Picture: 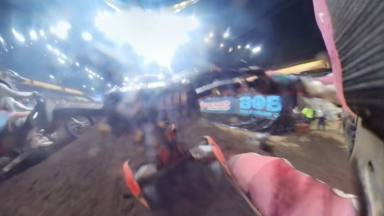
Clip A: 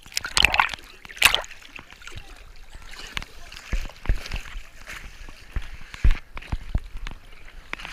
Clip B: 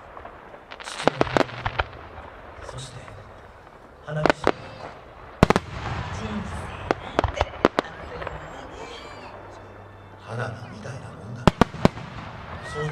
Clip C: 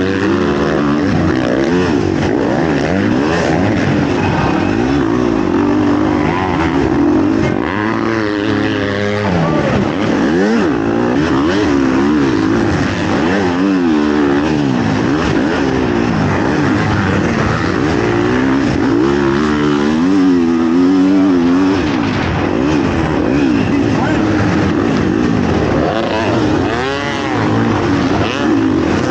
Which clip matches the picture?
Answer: C